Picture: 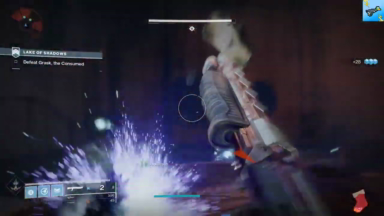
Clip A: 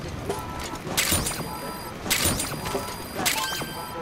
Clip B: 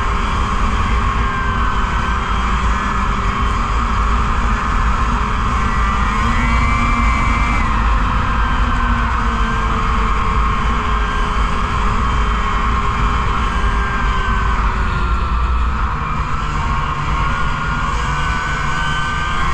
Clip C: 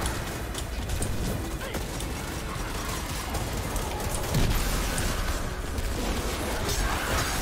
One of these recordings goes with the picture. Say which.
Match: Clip C